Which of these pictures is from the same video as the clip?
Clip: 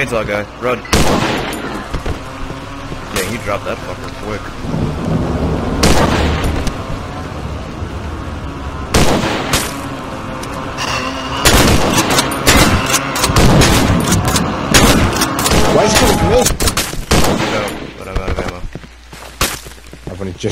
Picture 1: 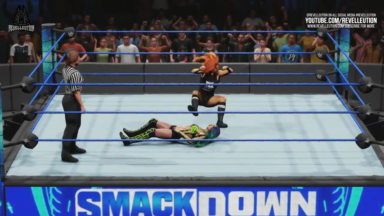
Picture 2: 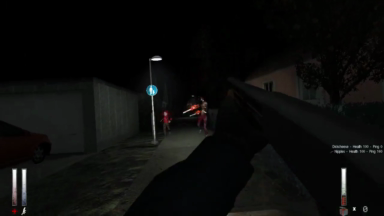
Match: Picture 2